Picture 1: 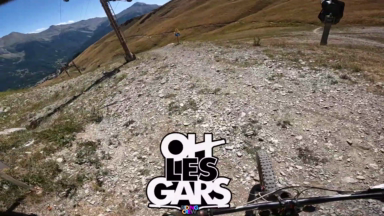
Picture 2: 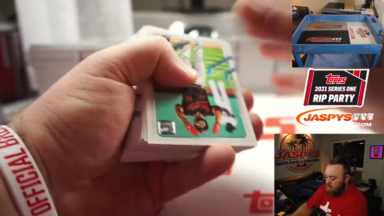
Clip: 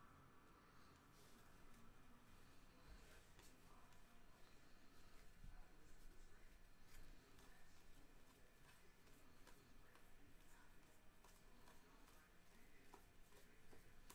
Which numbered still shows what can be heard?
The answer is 2